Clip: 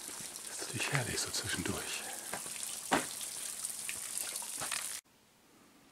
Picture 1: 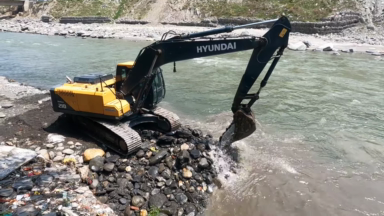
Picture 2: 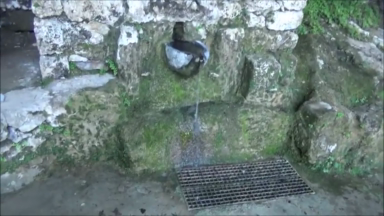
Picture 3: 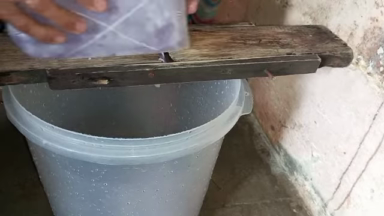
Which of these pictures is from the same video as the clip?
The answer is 2